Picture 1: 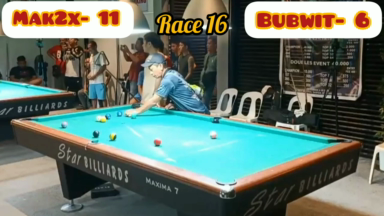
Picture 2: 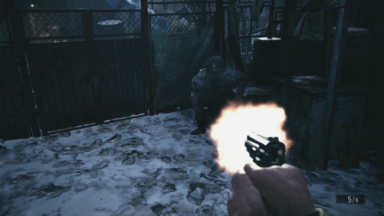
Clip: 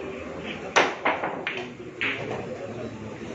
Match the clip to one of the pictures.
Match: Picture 1